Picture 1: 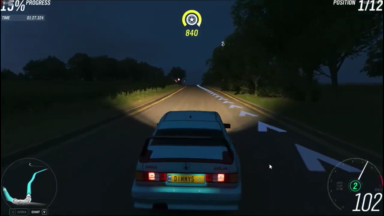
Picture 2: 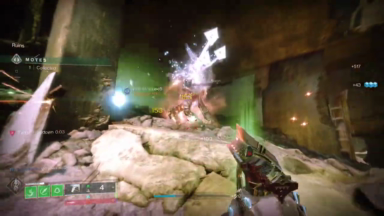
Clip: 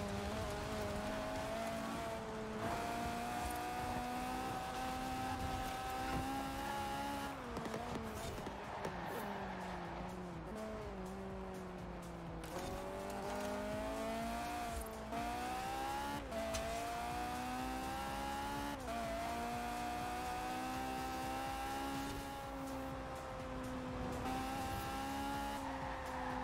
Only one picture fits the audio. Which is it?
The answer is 1